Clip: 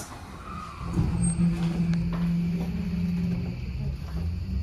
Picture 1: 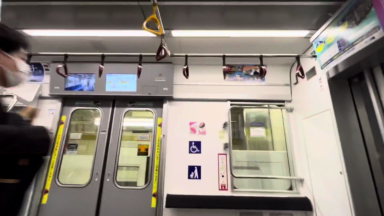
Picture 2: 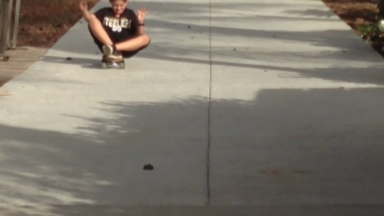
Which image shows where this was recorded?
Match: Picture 1